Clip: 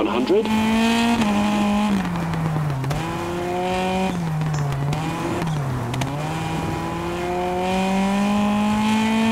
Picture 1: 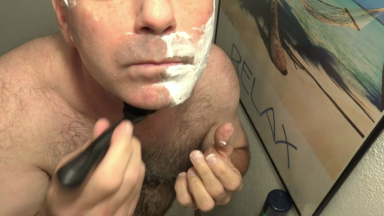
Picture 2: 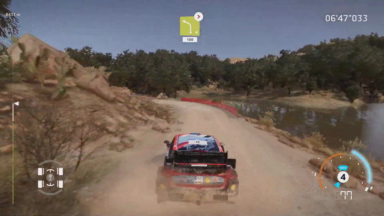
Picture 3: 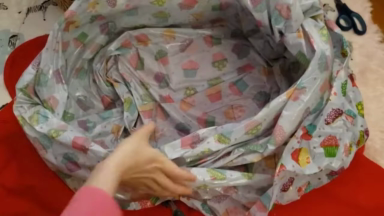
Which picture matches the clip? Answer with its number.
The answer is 2